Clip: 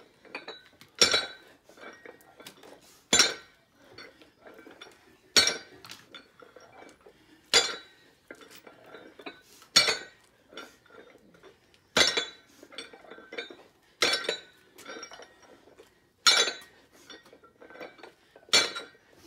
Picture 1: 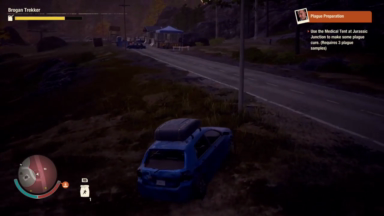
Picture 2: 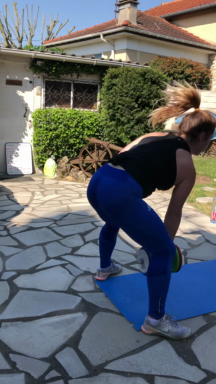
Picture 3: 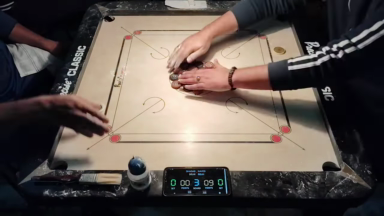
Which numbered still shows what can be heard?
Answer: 2